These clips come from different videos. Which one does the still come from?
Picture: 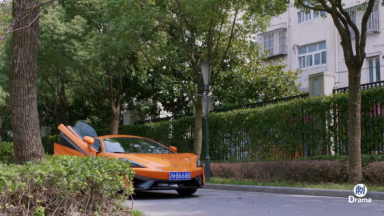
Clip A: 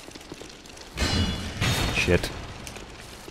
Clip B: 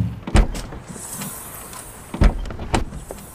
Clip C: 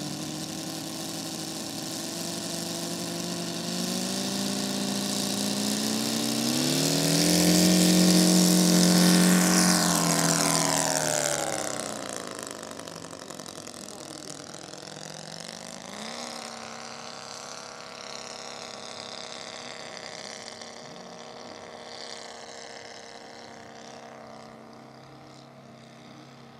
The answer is B